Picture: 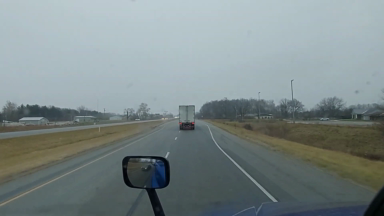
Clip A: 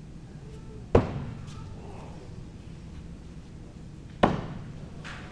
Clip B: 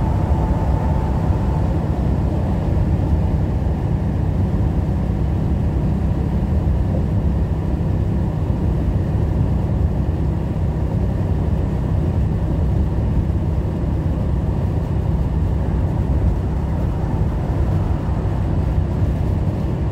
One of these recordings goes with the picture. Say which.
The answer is B